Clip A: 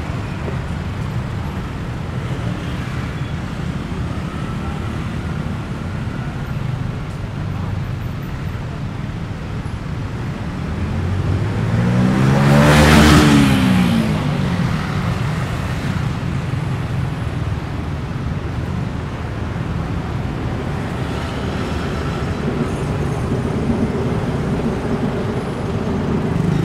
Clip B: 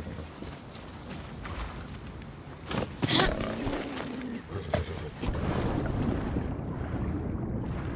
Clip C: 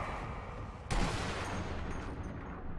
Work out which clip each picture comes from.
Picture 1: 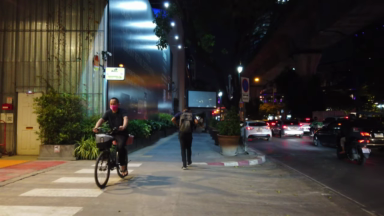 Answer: A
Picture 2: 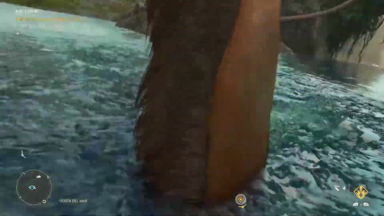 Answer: B